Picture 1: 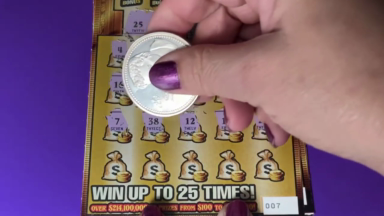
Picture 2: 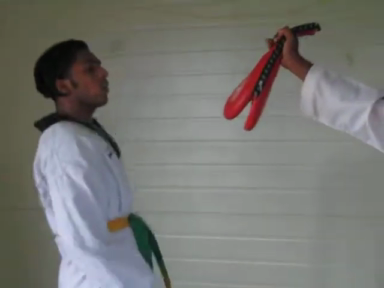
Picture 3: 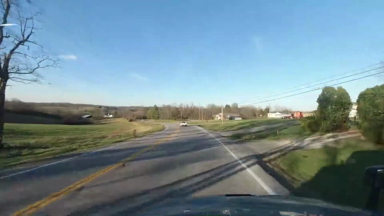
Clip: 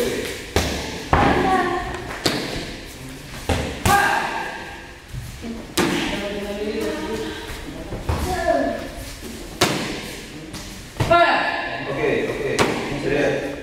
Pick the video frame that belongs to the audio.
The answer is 2